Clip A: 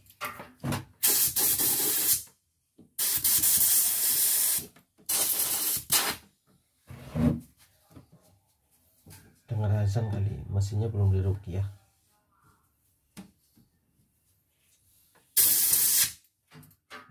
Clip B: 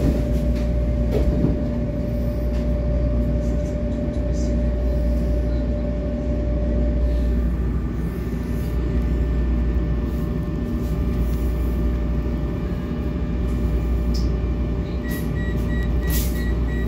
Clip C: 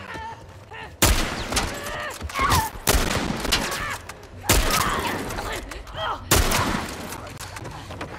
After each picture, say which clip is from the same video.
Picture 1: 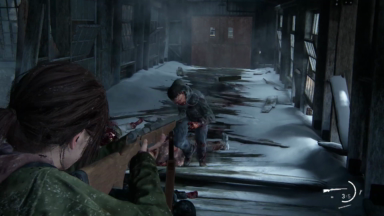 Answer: C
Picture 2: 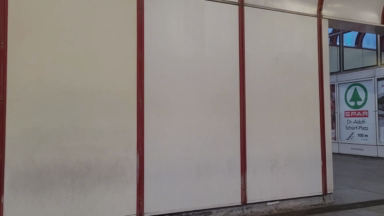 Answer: B